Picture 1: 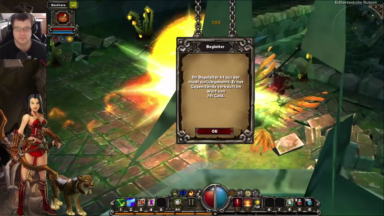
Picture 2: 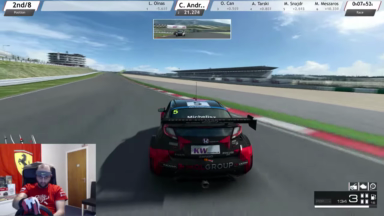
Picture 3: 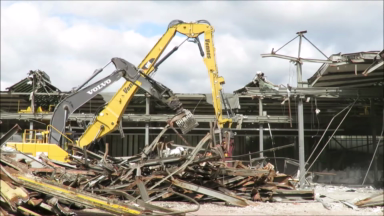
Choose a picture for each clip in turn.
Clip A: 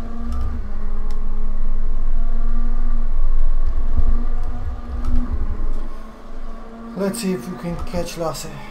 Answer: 2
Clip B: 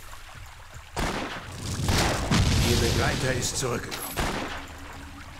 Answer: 1